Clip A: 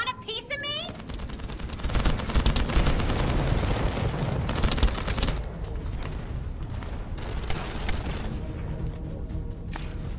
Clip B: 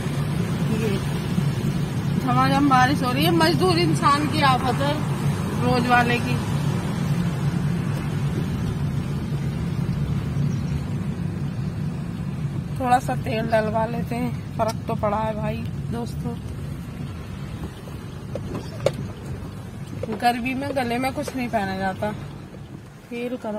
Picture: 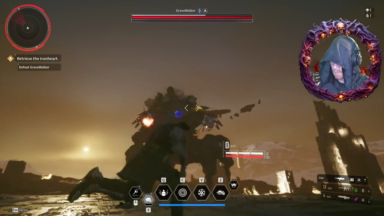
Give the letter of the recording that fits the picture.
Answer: A